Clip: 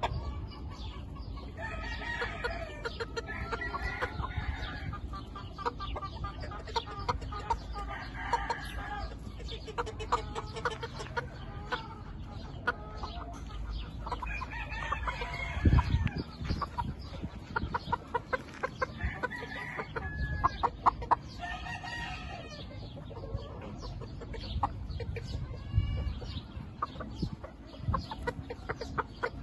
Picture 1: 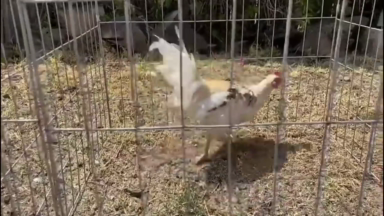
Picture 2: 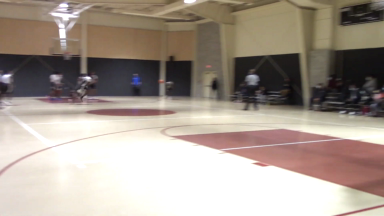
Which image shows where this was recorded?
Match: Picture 1